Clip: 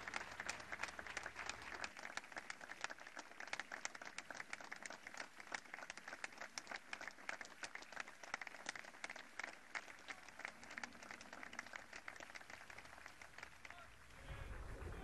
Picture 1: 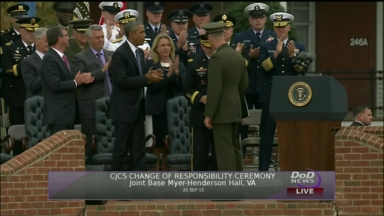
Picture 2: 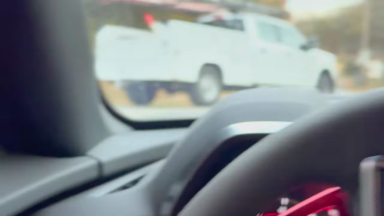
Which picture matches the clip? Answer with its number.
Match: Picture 1